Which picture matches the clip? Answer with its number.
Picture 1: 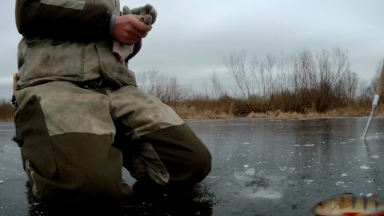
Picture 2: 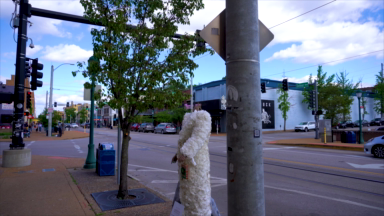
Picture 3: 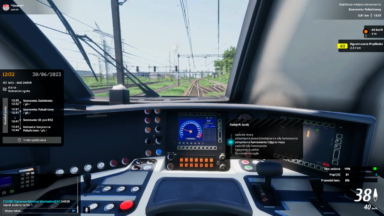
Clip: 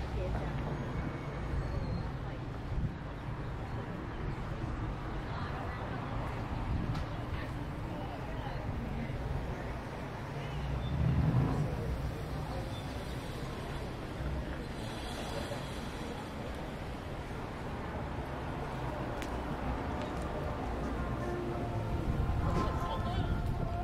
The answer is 2